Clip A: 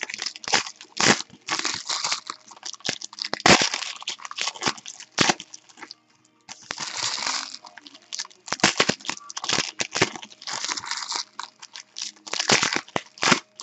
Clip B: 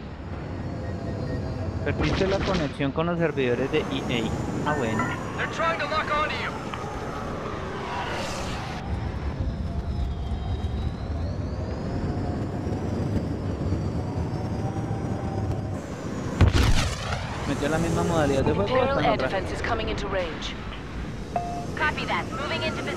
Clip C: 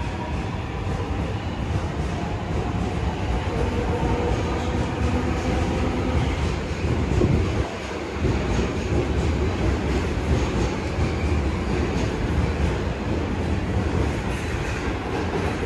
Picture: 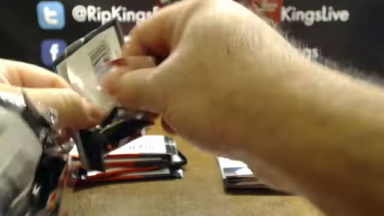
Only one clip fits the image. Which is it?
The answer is A